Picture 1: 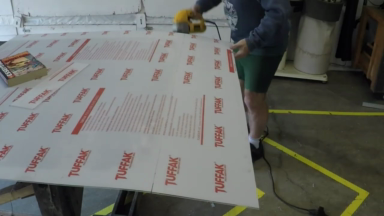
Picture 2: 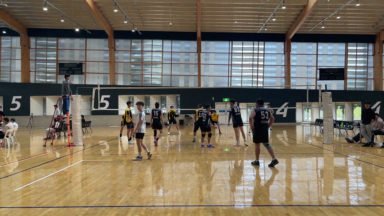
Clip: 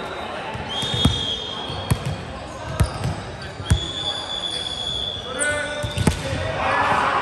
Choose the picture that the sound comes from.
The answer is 2